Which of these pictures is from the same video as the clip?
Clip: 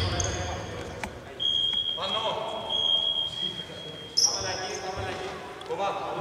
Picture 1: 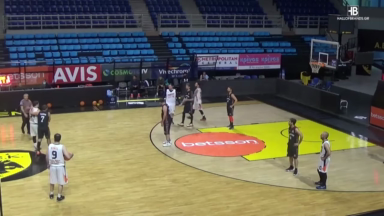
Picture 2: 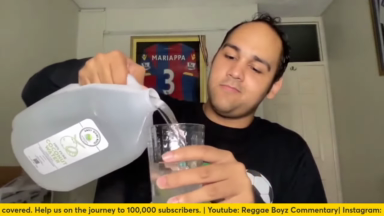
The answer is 1